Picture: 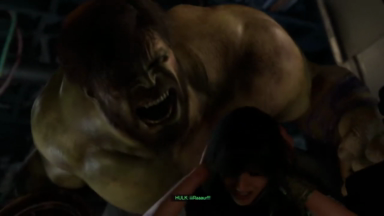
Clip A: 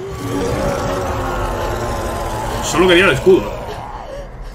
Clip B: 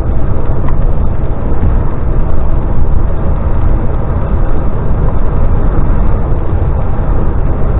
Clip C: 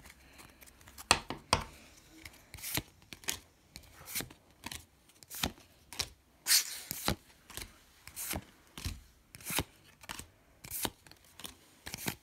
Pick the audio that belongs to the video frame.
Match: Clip A